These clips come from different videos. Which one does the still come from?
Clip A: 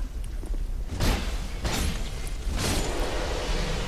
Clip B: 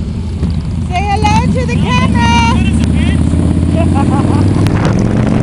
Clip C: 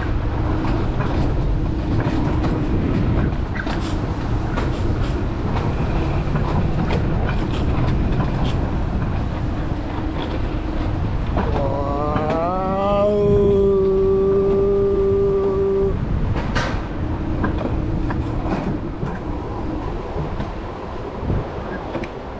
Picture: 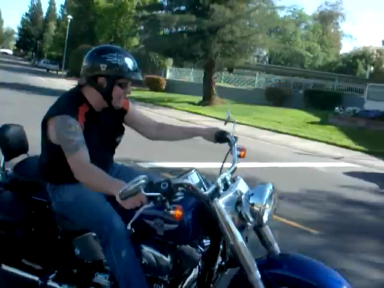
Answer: B